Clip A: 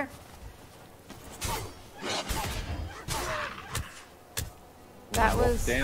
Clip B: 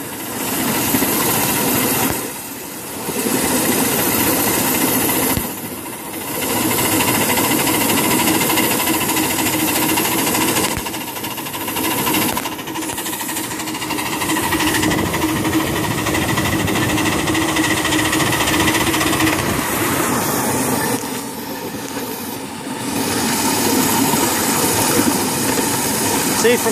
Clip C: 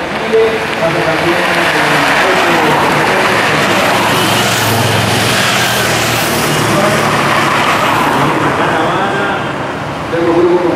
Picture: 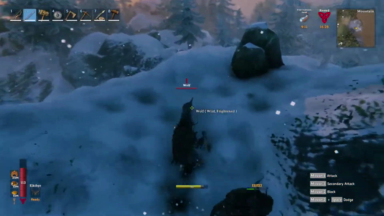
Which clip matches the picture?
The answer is A